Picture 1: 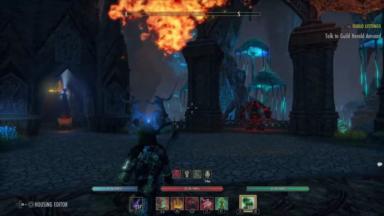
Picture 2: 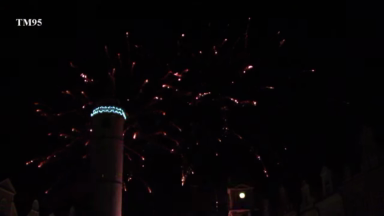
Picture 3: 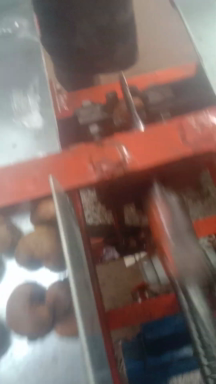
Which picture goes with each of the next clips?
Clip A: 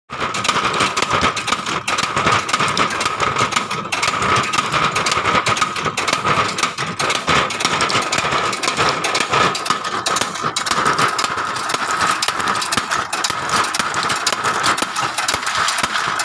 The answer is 3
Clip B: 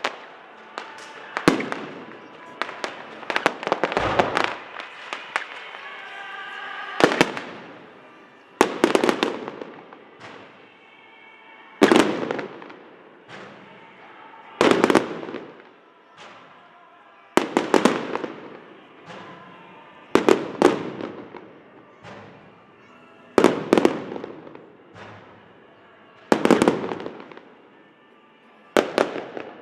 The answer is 2